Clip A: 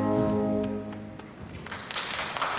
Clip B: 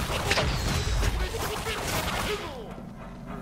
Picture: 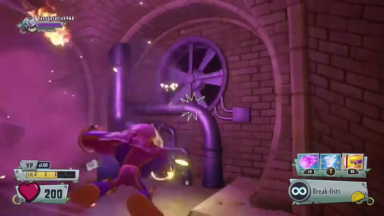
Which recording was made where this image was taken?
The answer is B